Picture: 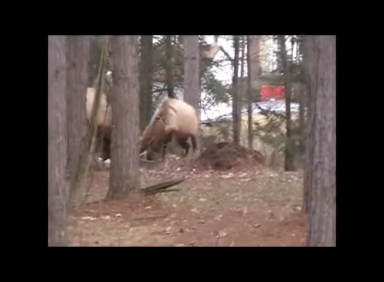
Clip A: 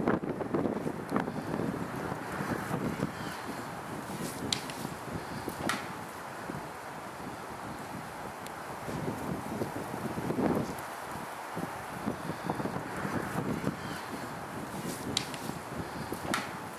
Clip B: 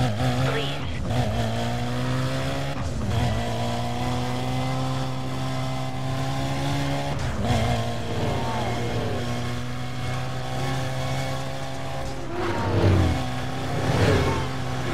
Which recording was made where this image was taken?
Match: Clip A